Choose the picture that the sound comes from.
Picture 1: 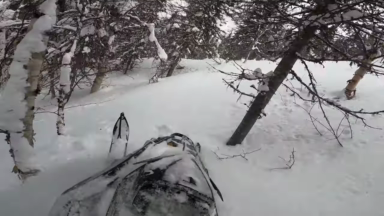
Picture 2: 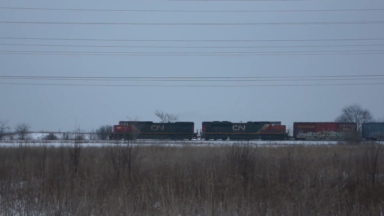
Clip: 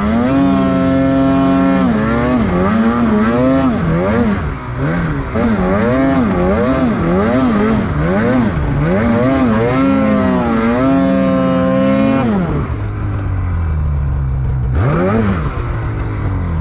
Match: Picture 1